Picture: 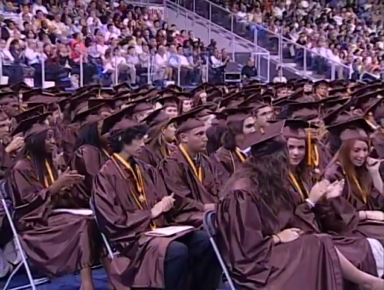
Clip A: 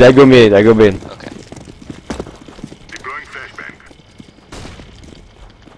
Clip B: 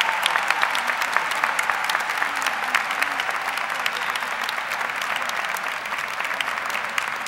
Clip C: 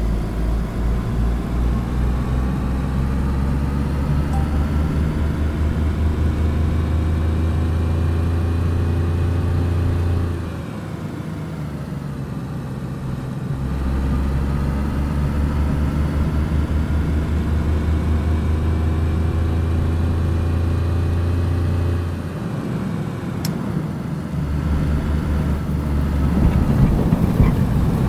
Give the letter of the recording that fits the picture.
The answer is B